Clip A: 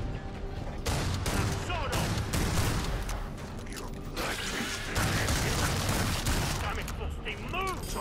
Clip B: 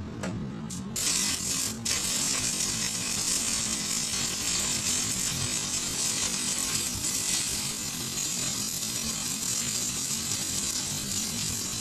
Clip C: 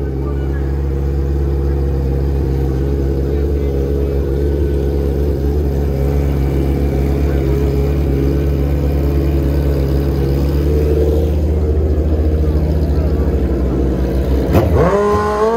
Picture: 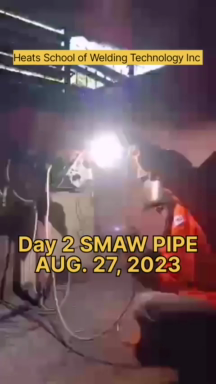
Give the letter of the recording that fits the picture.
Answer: B